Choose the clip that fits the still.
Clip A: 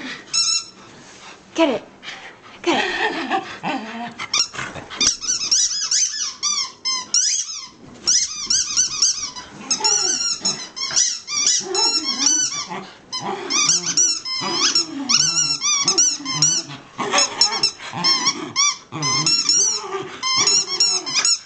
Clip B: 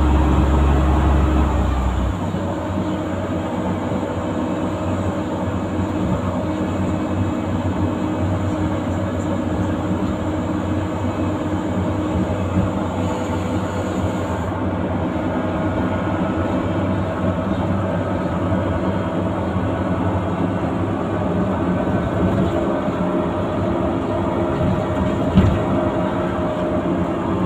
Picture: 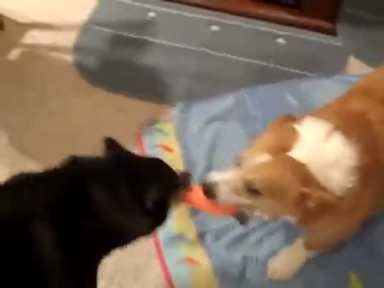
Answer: A